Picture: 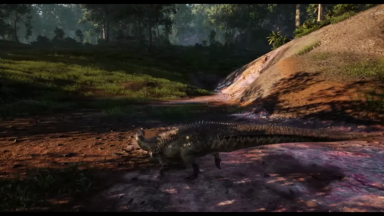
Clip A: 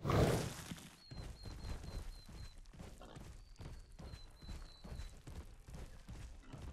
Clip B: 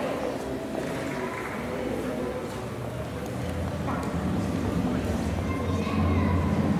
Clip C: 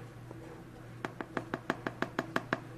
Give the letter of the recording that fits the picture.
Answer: A